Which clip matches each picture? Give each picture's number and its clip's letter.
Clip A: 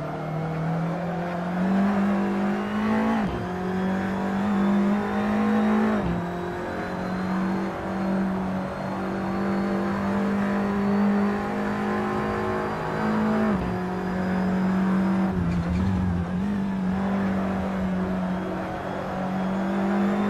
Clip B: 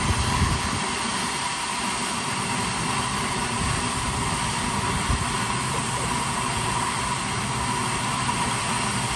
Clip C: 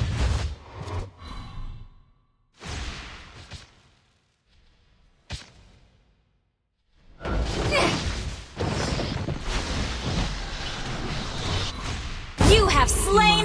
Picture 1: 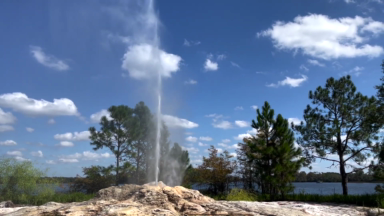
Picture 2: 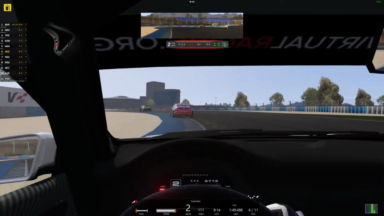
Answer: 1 B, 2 A